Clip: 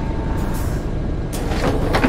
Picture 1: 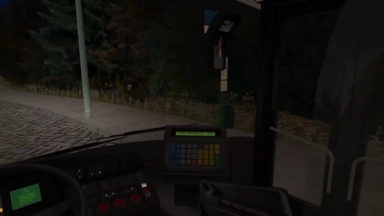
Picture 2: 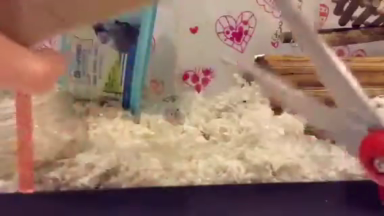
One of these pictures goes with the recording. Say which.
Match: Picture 1